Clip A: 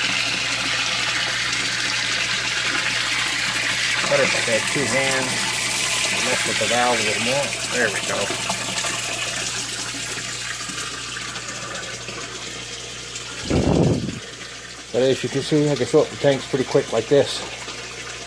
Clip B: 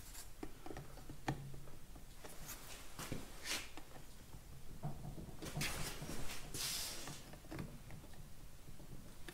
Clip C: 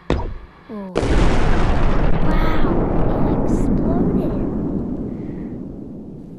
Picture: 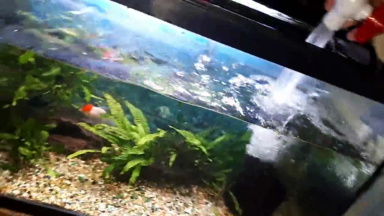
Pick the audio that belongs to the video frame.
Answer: A